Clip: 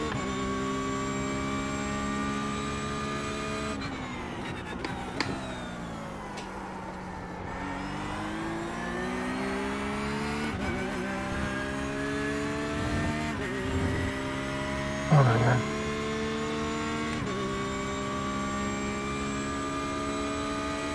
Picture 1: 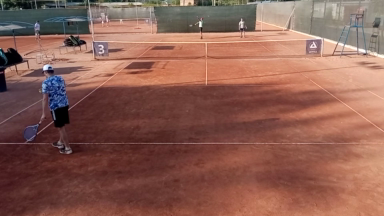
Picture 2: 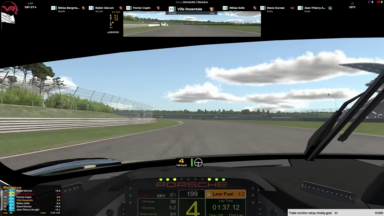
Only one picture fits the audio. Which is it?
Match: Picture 2